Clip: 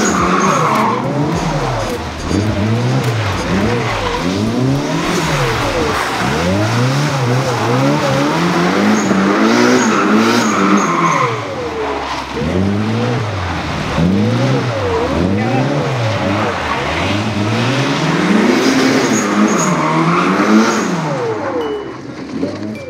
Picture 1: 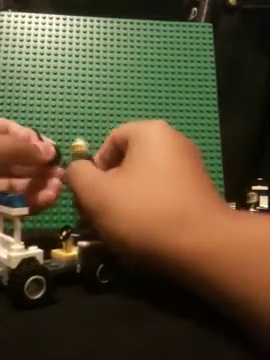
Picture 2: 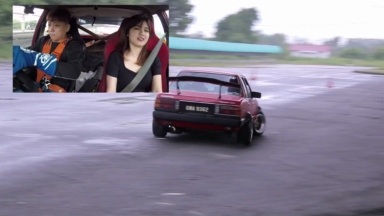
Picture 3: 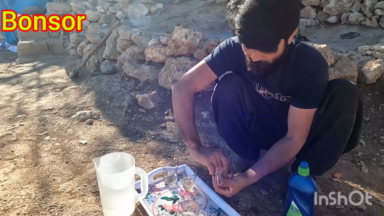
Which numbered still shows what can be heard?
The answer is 2